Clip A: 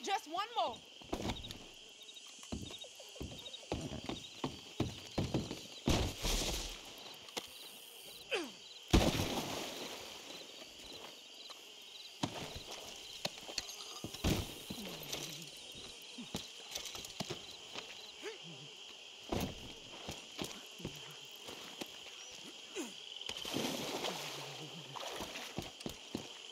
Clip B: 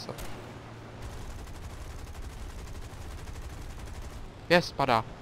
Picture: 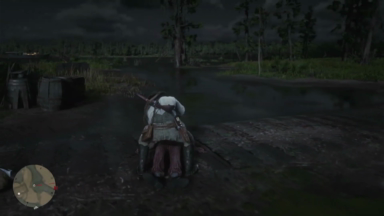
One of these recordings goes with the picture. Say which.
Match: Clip A